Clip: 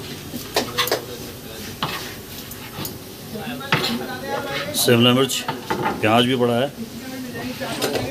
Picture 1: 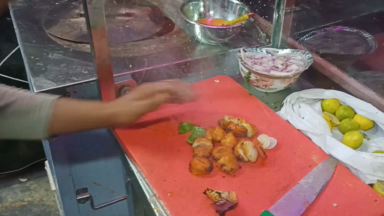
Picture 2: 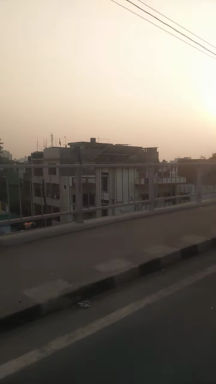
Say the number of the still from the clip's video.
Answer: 1